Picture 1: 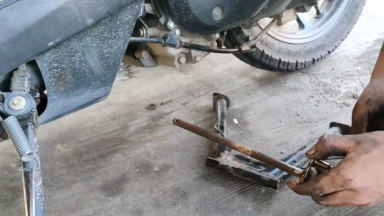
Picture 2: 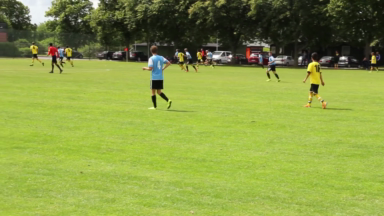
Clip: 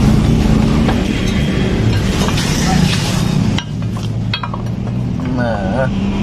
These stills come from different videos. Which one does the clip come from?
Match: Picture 1